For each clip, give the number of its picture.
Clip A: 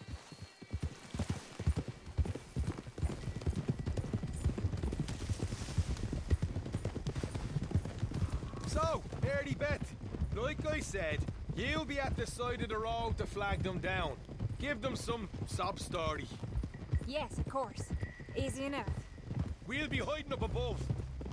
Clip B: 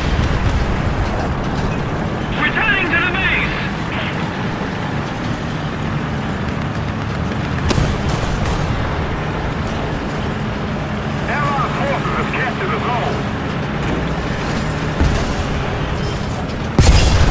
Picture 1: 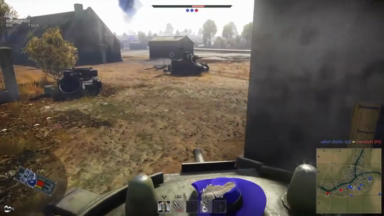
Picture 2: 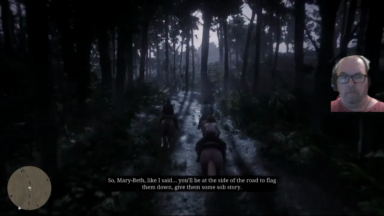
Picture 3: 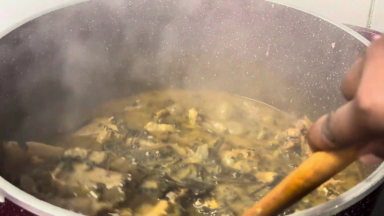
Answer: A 2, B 1